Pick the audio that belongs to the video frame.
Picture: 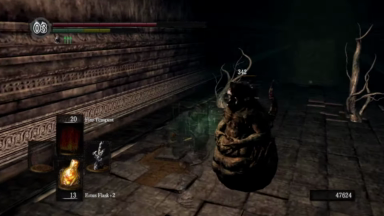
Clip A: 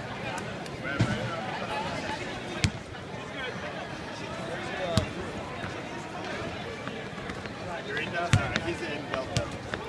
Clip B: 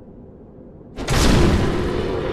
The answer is B